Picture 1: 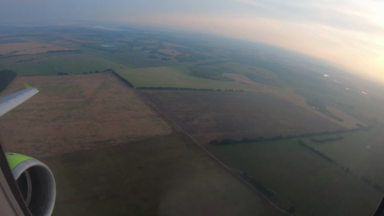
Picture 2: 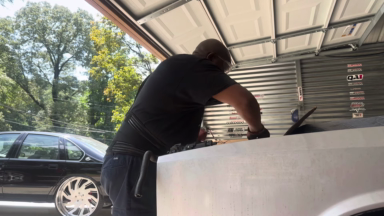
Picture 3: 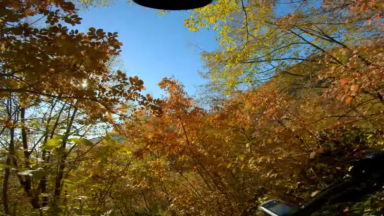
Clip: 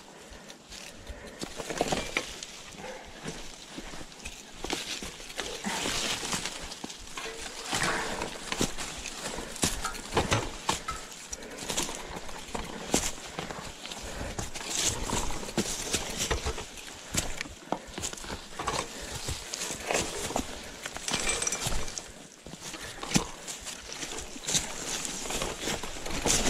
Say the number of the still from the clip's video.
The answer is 3